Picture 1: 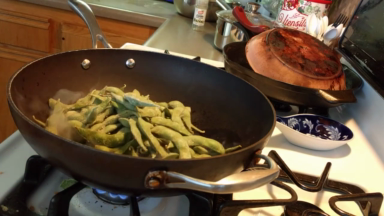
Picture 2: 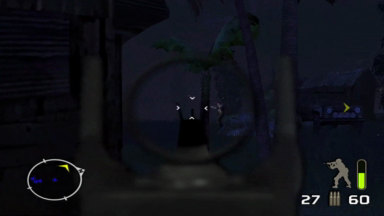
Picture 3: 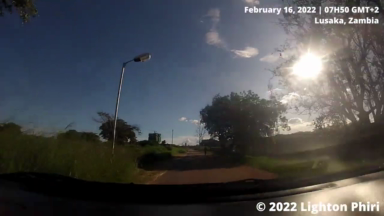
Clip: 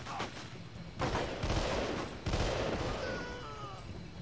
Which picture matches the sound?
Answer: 2